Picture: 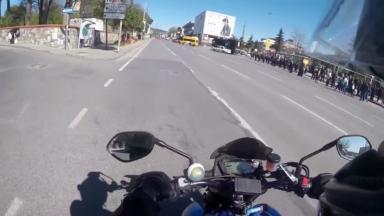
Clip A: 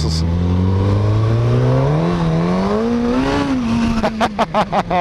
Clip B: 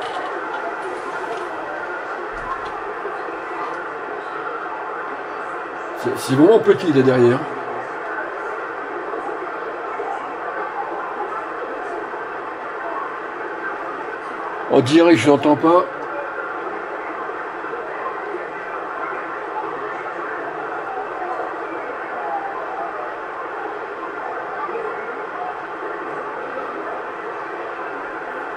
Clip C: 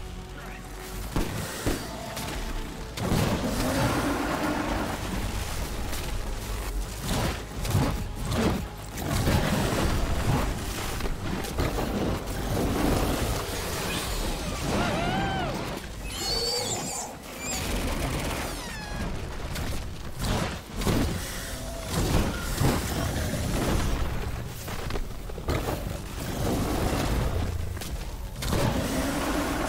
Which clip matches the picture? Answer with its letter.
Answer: A